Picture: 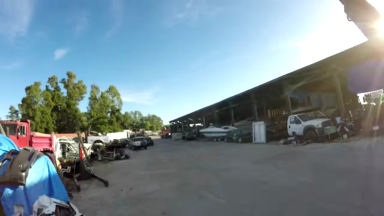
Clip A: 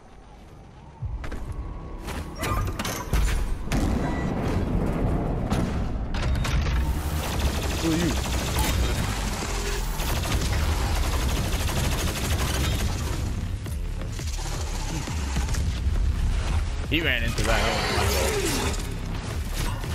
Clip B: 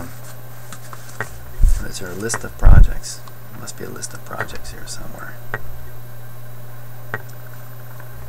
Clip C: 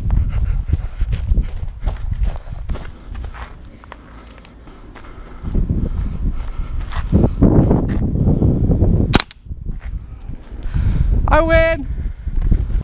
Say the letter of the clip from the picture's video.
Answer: C